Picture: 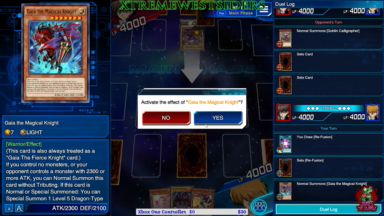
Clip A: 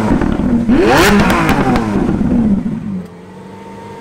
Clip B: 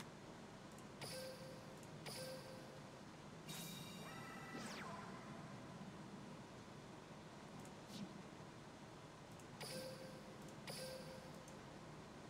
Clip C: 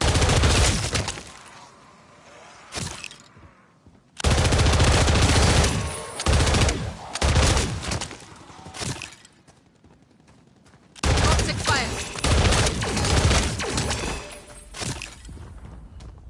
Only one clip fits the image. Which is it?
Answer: B